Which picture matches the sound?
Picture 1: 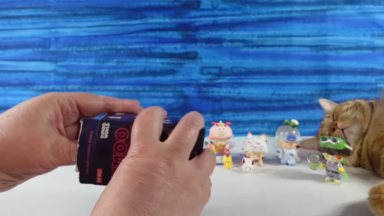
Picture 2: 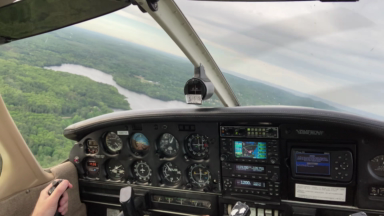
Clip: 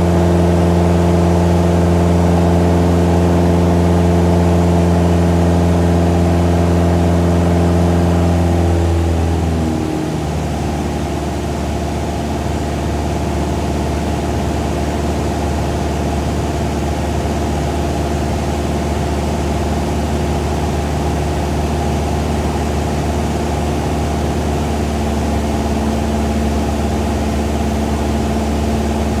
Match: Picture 2